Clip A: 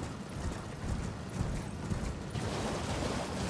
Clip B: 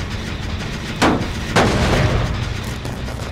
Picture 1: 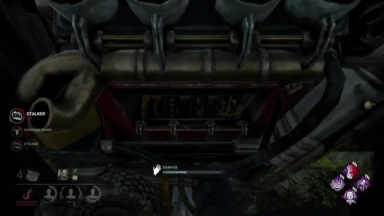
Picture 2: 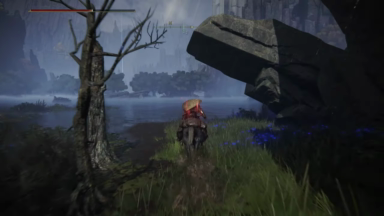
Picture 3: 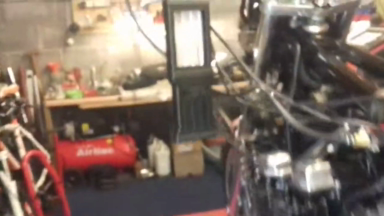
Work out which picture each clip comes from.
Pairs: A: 2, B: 1